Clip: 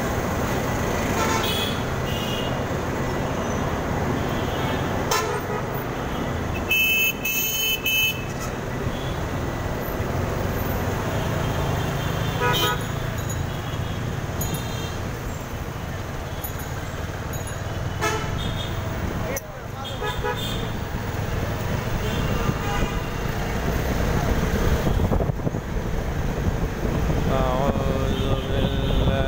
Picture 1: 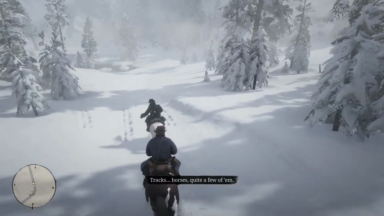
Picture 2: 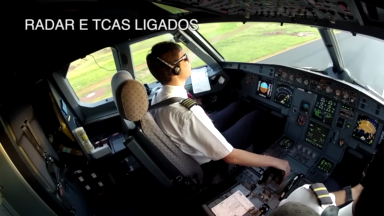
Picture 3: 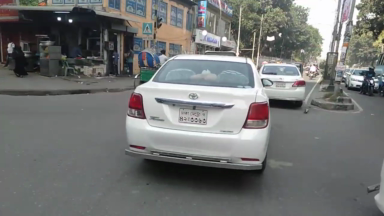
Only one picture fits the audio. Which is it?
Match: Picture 3